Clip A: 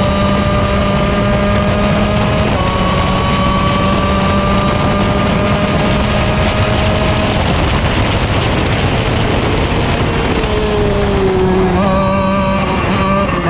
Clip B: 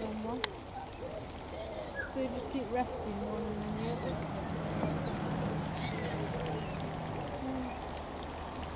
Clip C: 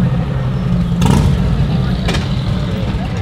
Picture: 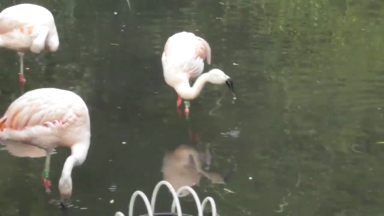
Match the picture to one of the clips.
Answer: B